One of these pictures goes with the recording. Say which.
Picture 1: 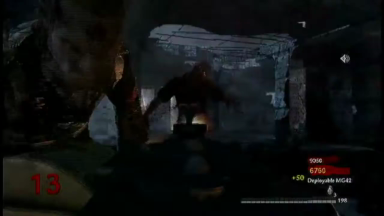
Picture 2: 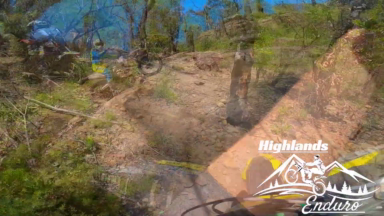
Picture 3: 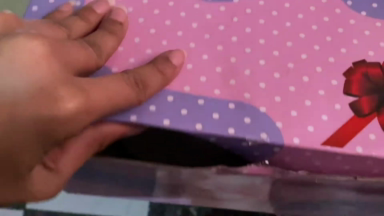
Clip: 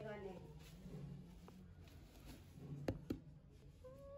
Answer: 3